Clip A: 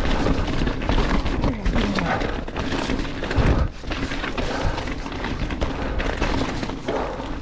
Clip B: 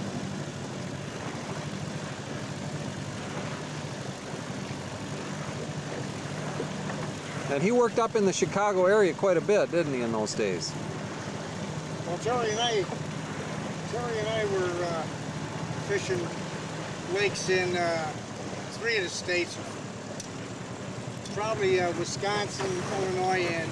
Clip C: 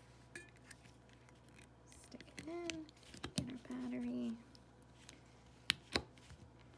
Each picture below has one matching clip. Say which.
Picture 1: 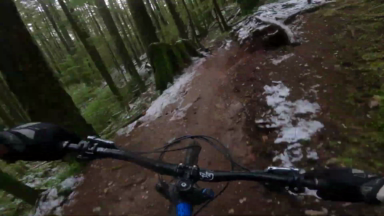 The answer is A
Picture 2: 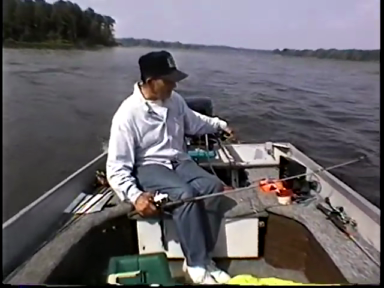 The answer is B